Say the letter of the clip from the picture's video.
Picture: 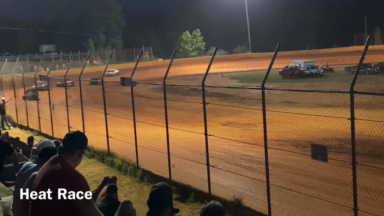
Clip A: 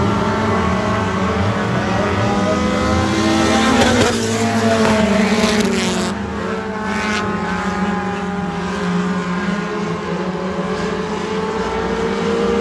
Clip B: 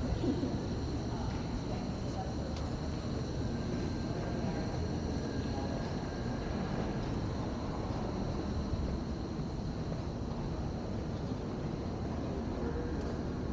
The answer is A